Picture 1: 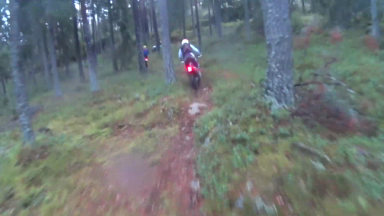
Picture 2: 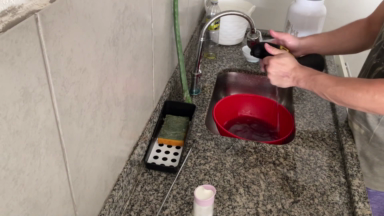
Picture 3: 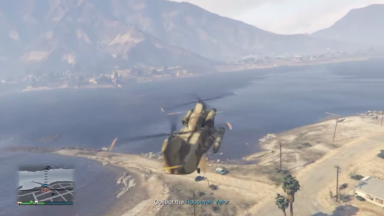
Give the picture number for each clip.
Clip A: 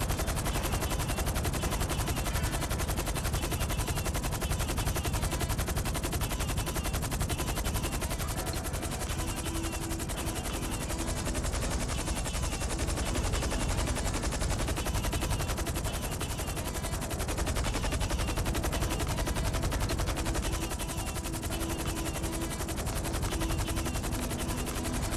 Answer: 3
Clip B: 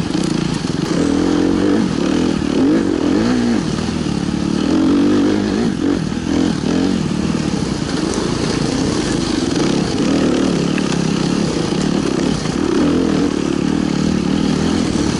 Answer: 1